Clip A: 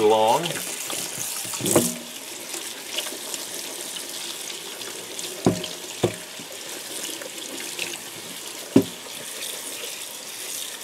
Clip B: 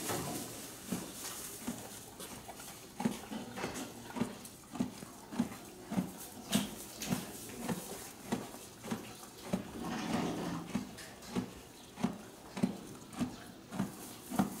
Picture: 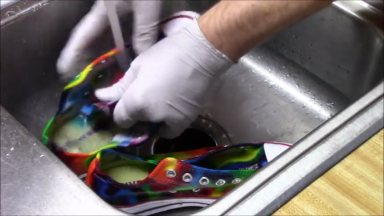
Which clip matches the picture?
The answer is A